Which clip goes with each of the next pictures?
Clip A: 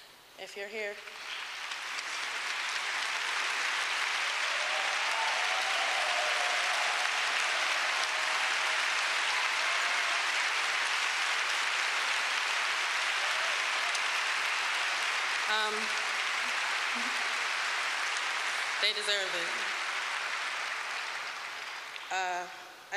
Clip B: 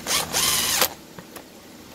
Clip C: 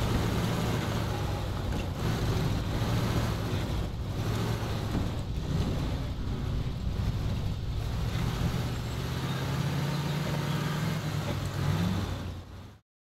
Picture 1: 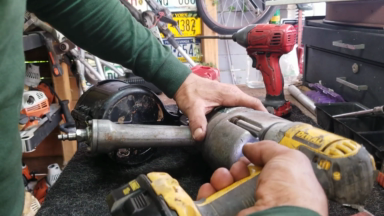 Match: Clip B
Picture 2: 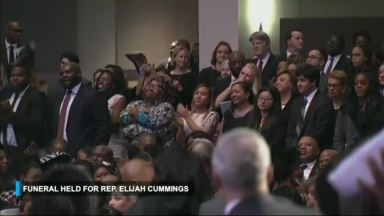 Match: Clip A